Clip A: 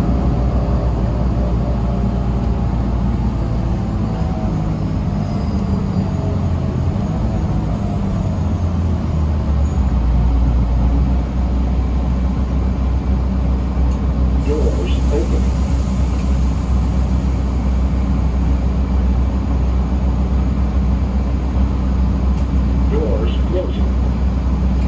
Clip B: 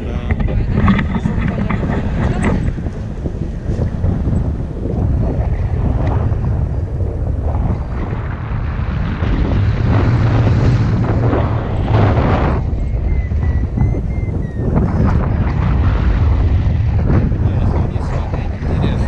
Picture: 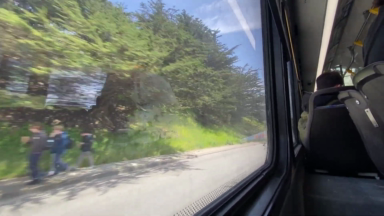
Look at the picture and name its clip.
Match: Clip A